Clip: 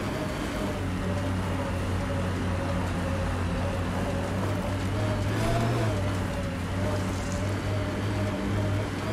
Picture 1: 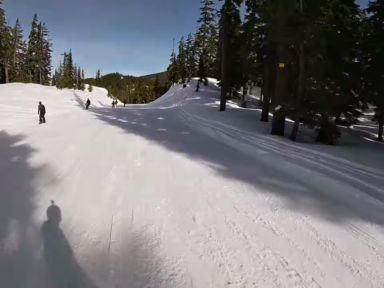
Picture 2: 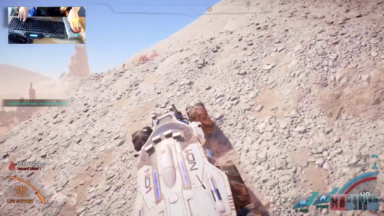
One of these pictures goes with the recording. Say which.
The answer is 2